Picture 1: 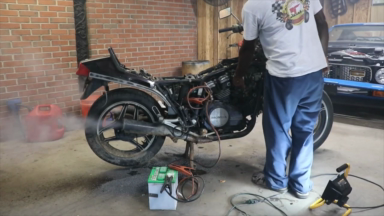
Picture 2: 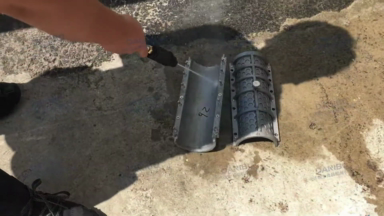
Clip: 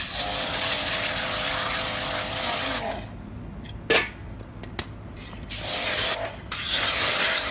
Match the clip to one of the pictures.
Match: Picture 2